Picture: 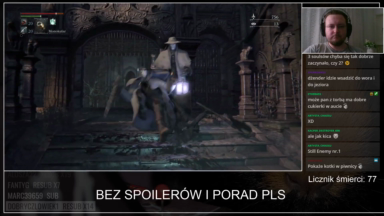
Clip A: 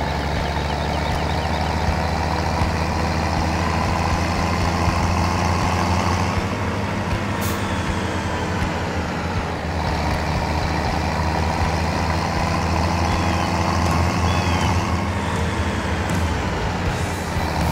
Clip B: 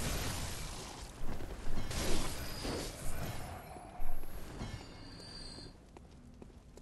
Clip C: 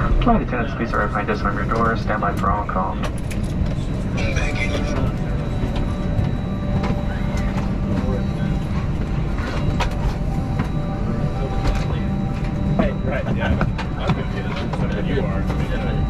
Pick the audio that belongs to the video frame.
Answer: B